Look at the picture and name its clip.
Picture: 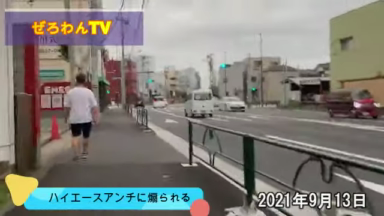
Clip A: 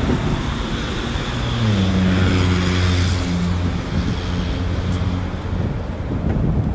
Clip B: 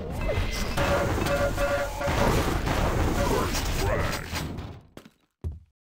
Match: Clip A